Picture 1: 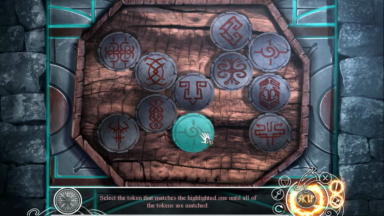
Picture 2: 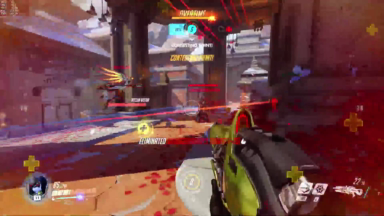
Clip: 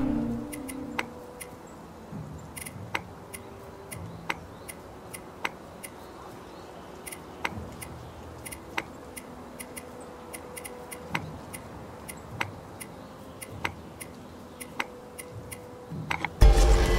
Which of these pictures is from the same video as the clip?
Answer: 1